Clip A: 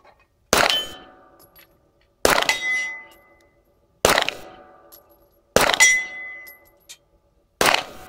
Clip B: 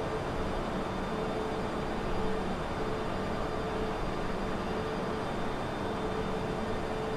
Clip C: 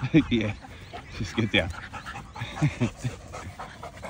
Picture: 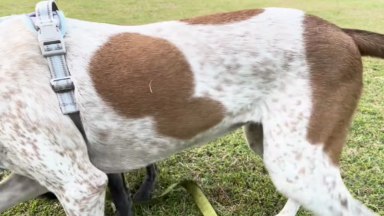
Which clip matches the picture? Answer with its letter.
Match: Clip C